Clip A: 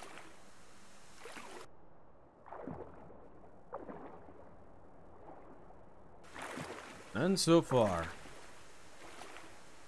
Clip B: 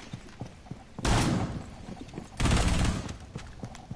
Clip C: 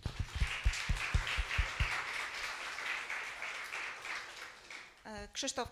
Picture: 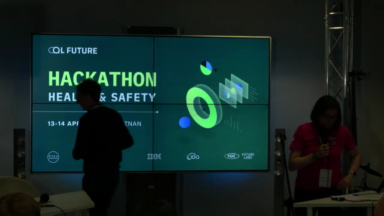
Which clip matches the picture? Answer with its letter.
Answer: C